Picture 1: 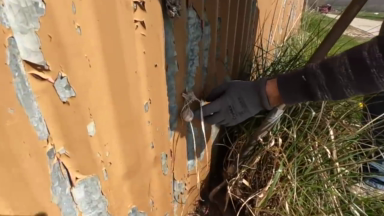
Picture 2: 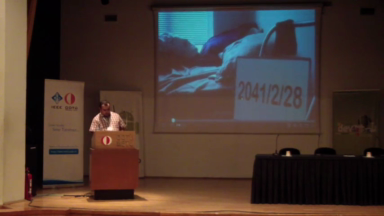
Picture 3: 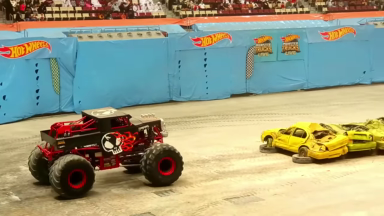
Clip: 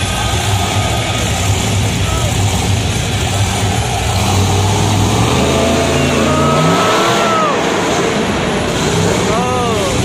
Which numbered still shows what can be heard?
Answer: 3